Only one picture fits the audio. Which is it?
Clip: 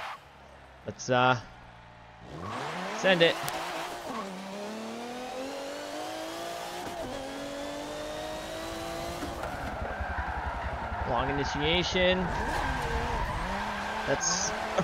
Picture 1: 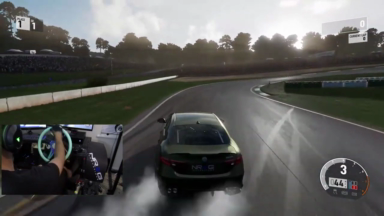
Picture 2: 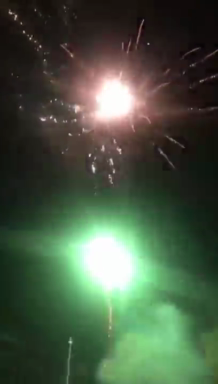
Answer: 1